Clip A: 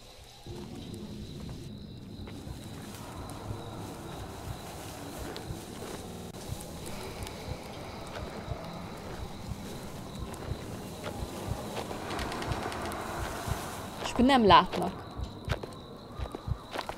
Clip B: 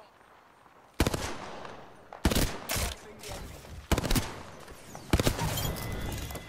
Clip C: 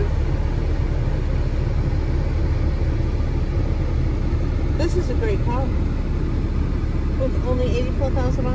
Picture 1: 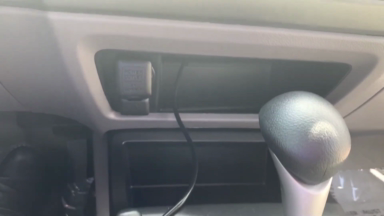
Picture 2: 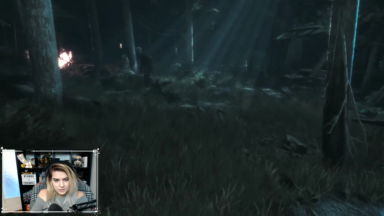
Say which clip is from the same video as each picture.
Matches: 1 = C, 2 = A